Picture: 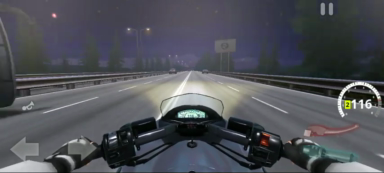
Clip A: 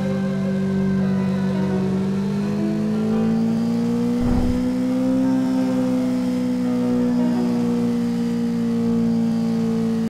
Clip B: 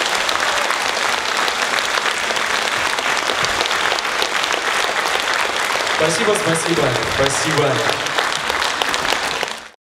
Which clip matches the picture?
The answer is A